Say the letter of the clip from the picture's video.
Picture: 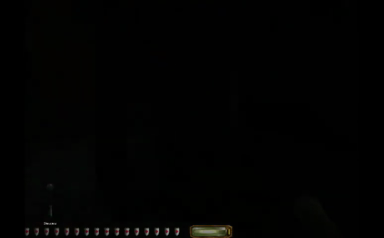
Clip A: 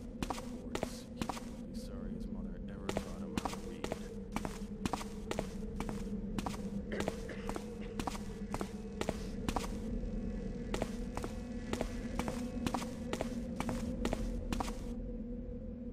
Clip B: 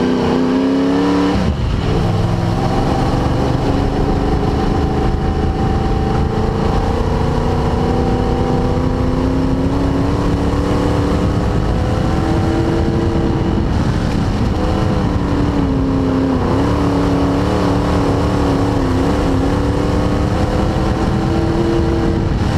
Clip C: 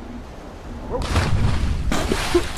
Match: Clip A